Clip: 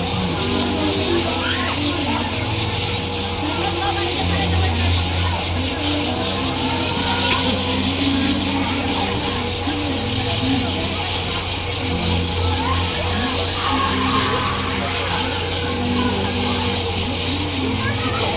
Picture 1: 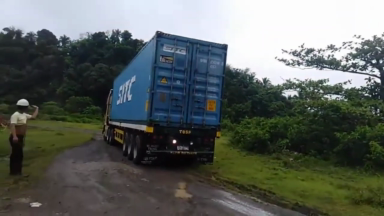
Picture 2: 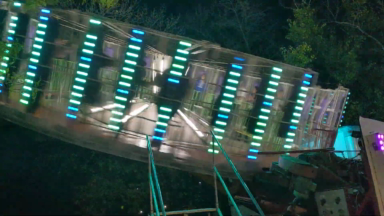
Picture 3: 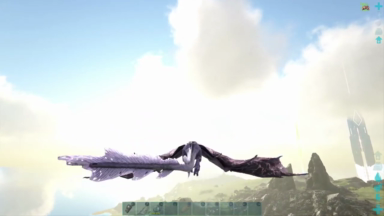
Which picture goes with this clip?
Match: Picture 2